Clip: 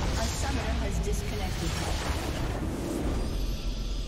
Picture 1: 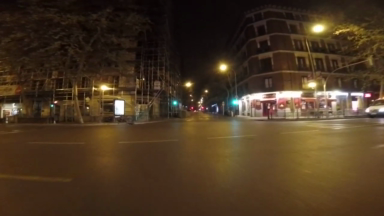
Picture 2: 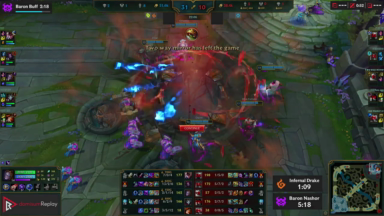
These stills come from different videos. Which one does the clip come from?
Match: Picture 2